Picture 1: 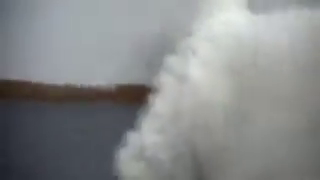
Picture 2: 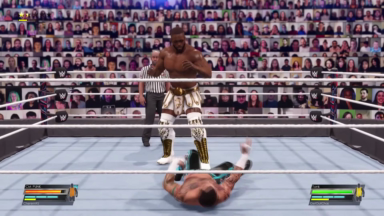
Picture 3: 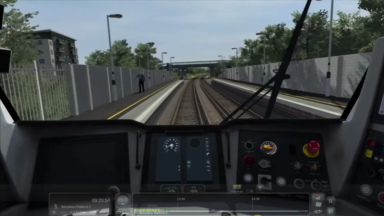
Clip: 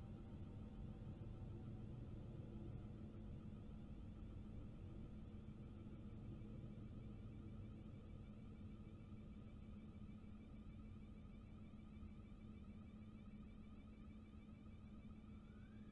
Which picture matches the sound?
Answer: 3